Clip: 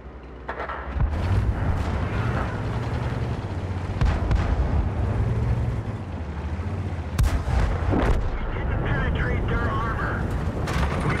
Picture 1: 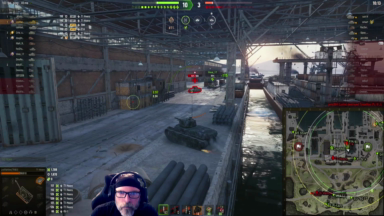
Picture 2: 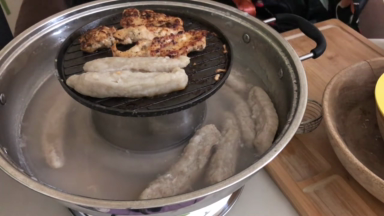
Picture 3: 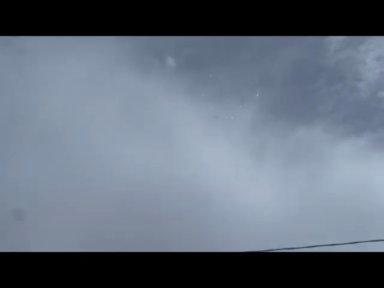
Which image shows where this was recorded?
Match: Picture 1